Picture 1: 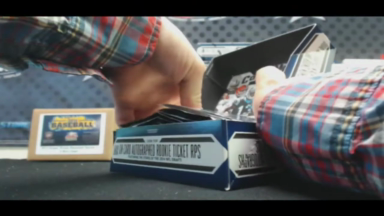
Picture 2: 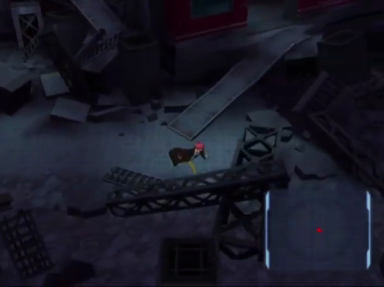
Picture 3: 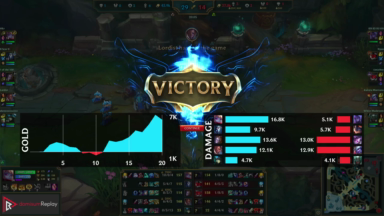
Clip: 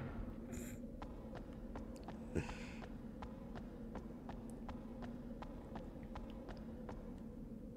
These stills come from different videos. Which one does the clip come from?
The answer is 2